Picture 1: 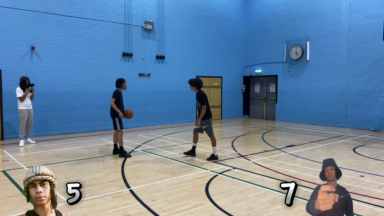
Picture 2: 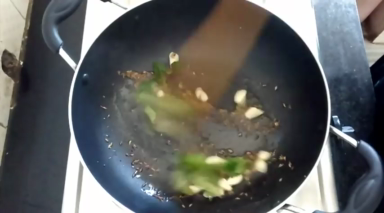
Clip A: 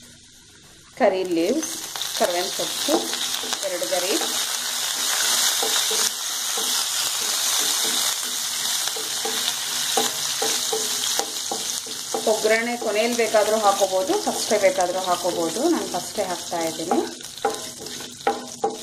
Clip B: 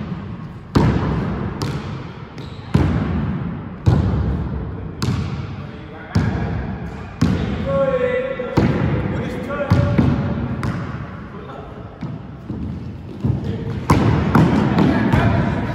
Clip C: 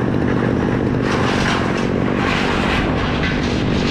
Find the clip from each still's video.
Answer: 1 B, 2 A